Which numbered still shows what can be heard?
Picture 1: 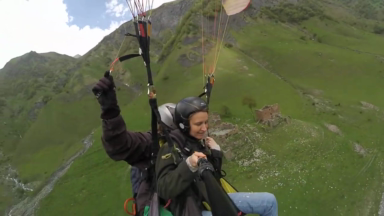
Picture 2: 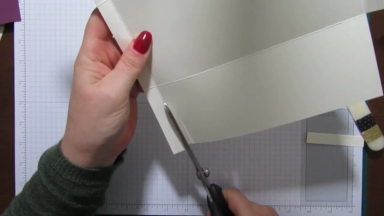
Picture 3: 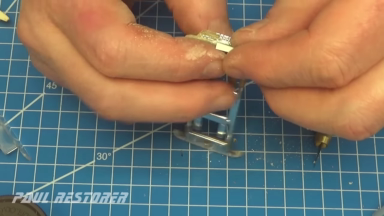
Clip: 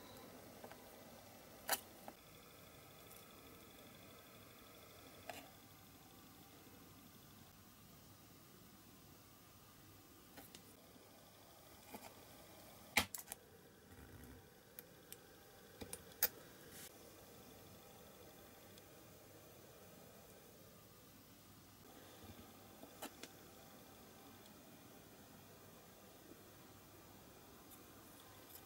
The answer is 3